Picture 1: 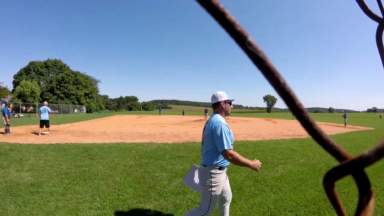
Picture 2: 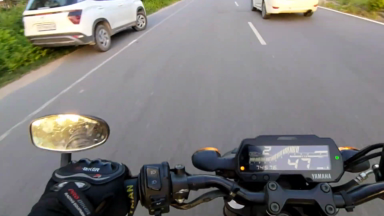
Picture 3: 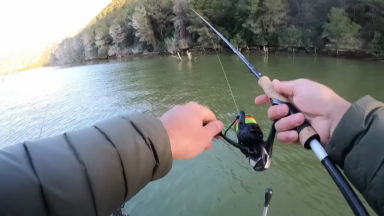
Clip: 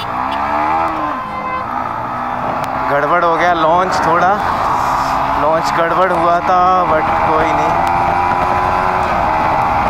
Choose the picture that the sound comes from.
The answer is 2